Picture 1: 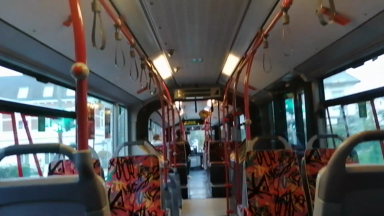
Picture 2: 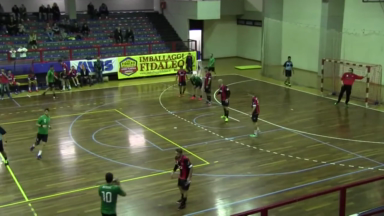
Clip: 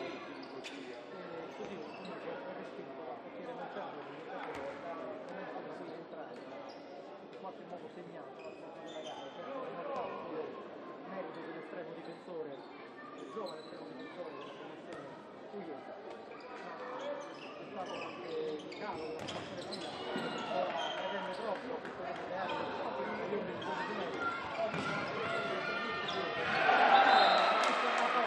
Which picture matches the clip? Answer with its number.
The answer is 2